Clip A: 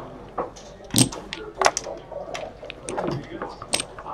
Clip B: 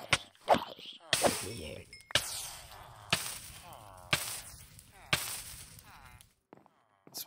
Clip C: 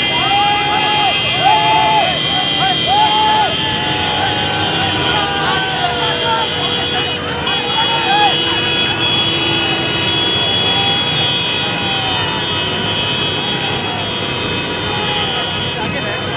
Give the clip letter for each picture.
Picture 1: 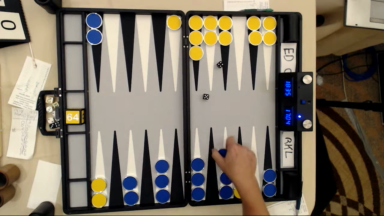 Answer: A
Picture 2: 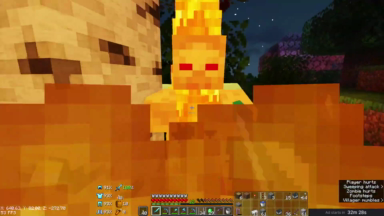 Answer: B